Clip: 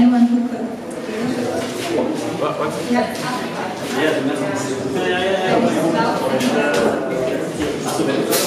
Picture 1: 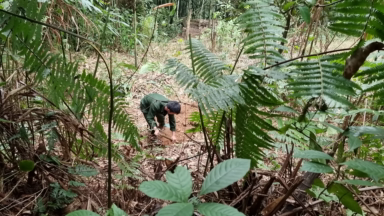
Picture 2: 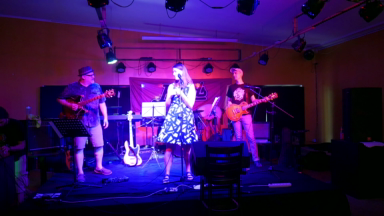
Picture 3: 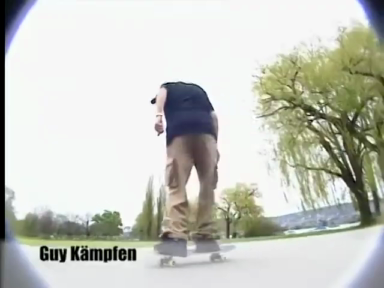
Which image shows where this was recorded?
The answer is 2